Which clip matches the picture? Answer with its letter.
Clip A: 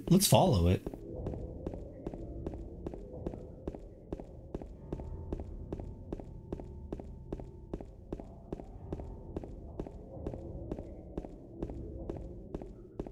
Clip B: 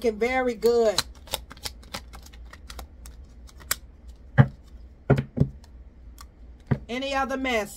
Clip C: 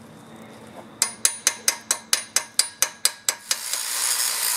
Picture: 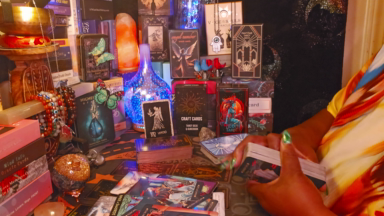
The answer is B